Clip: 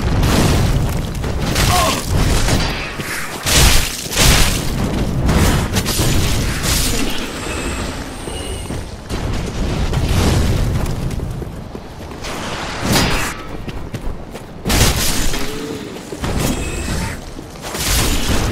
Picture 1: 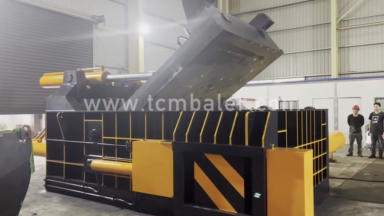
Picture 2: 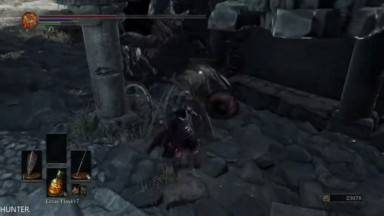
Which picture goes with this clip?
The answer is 2